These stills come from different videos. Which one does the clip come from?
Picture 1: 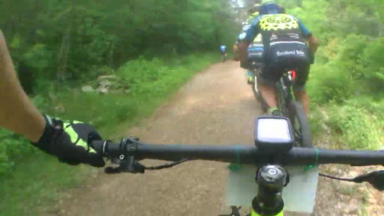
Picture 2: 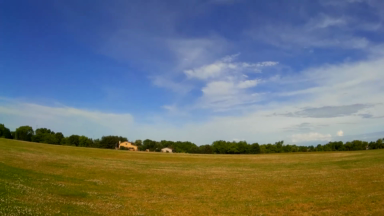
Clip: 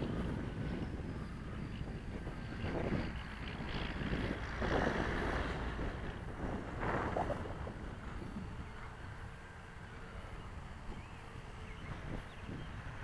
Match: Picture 2